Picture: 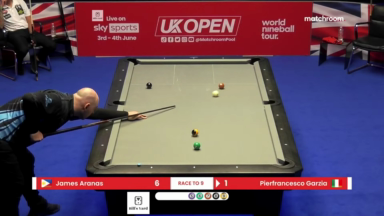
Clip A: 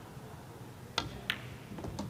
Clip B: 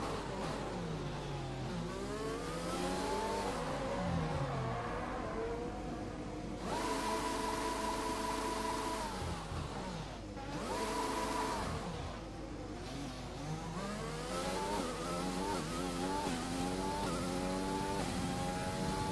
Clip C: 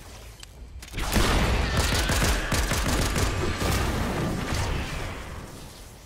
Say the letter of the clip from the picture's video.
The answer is A